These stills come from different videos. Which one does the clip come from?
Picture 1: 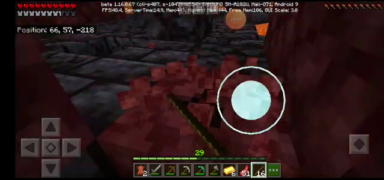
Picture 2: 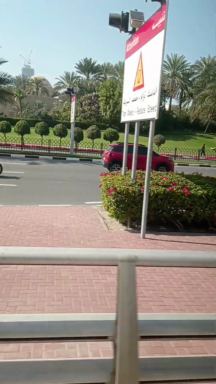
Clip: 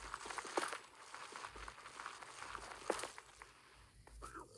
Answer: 1